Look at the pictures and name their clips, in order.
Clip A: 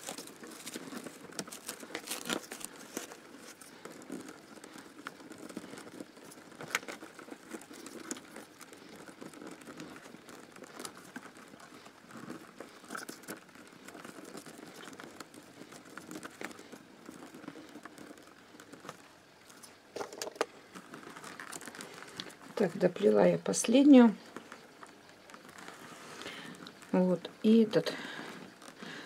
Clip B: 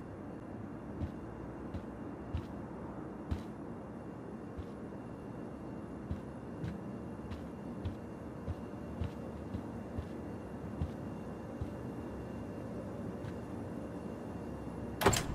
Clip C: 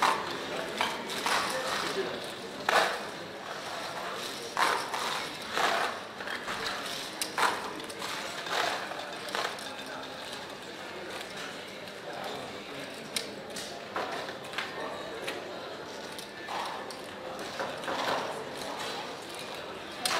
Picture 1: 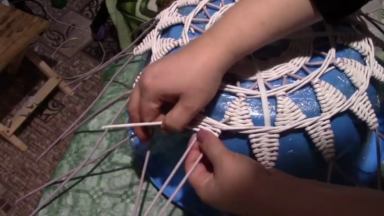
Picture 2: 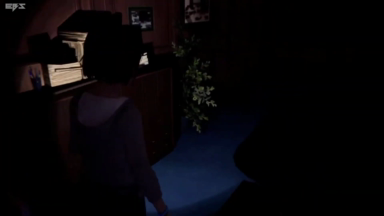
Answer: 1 A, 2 B